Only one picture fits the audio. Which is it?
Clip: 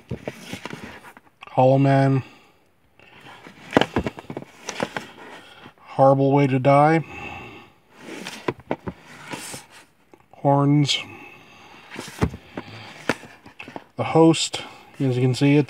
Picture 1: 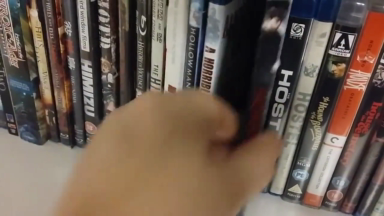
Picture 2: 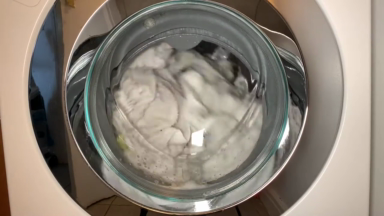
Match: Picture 1